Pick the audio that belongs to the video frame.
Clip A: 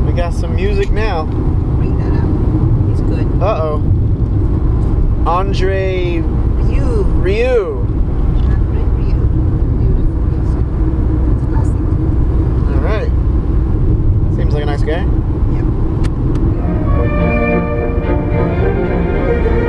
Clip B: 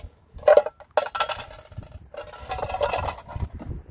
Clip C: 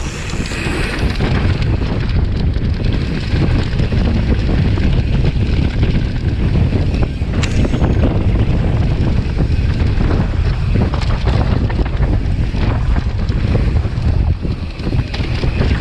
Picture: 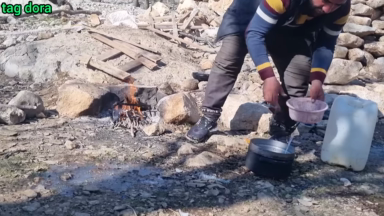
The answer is B